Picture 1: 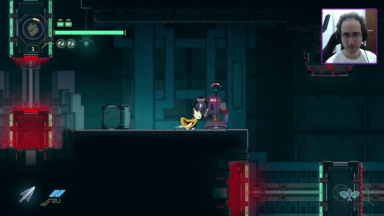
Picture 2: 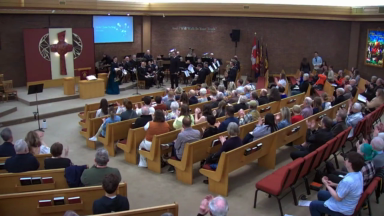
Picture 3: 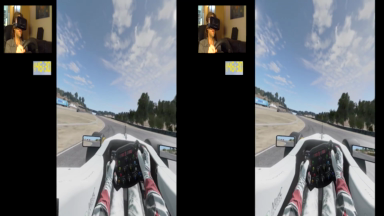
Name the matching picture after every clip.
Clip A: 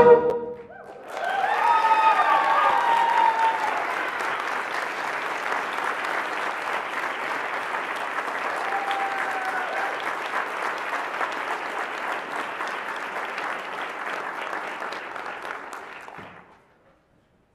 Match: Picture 2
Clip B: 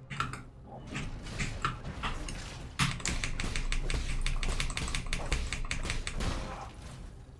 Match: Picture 1